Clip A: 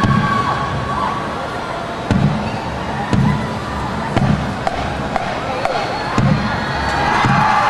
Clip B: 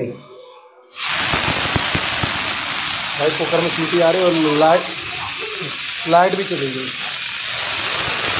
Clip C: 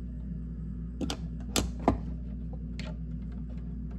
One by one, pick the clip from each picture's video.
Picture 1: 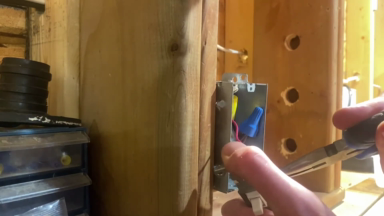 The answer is C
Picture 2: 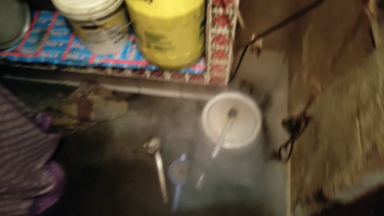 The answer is B